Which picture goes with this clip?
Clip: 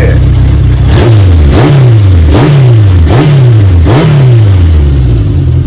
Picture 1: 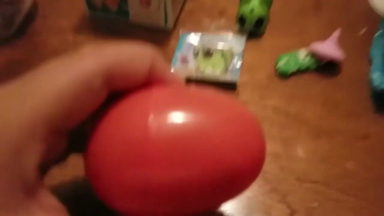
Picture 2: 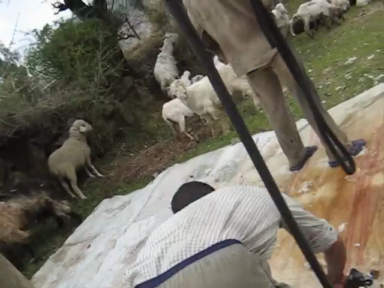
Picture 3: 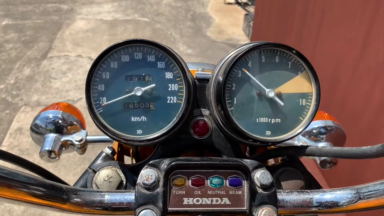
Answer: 3